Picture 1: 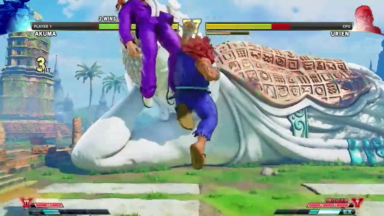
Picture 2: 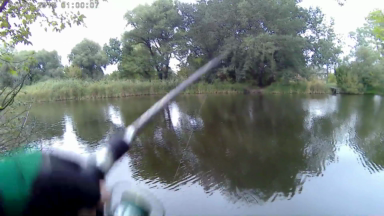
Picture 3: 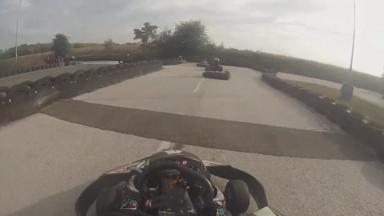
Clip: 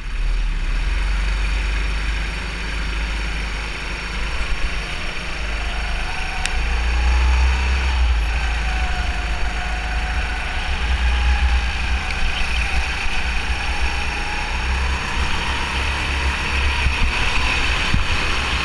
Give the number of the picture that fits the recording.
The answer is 3